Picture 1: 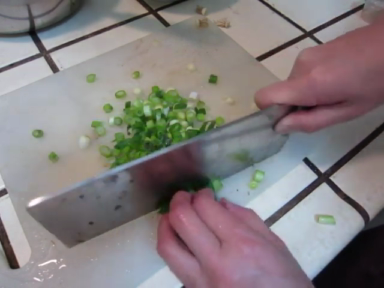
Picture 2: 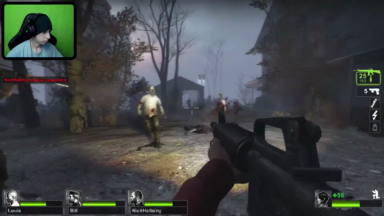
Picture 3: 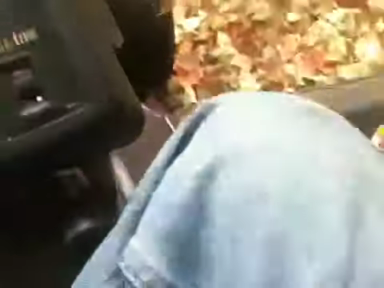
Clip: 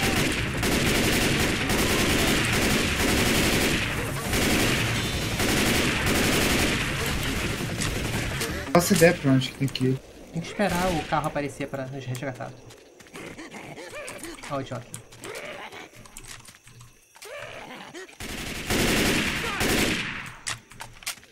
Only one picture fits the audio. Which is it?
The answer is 2